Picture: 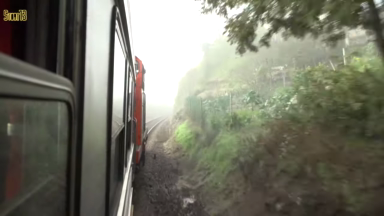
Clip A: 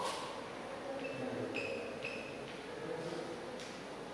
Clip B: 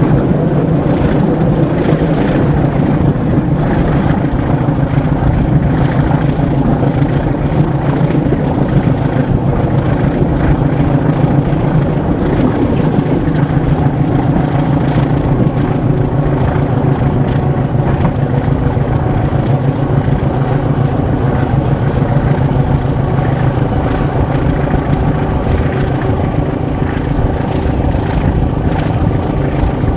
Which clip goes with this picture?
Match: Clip B